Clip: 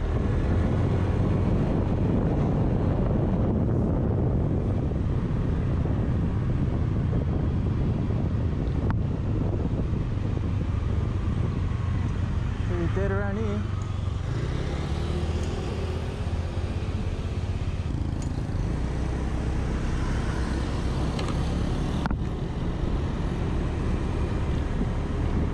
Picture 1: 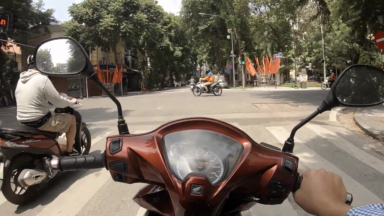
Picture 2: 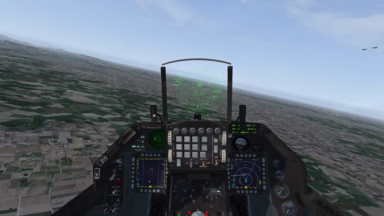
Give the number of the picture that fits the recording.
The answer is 1